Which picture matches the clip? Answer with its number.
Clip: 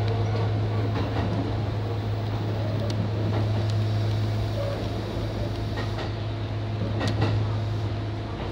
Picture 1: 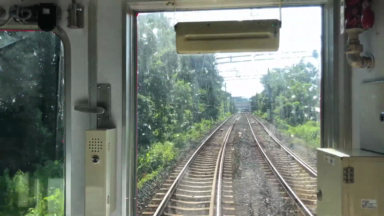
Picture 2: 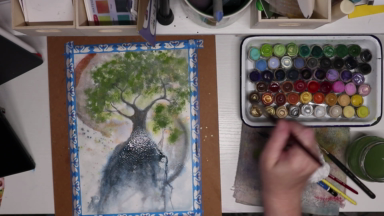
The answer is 1